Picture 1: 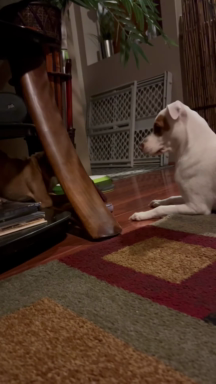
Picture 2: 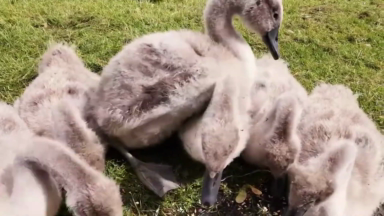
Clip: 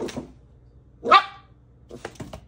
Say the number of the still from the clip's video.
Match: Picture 1